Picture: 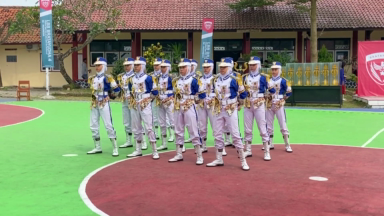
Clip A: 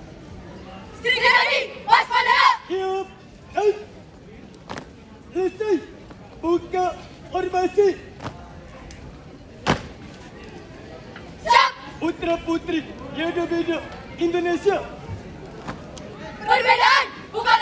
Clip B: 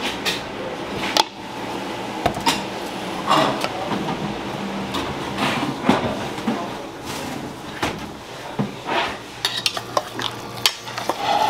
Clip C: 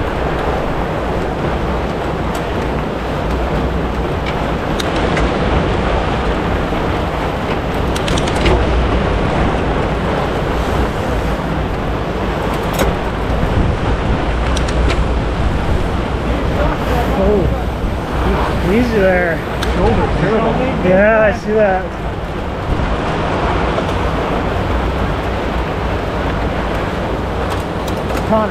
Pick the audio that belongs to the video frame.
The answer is A